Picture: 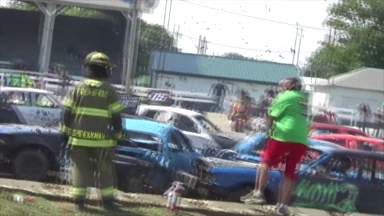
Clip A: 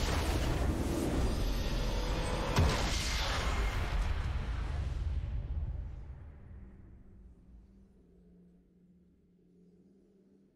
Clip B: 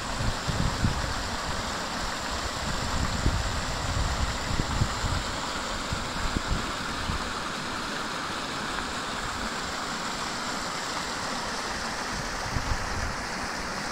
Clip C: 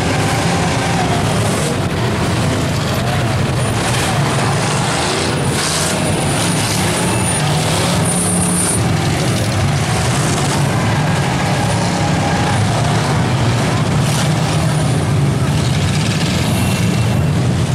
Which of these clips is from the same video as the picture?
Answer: C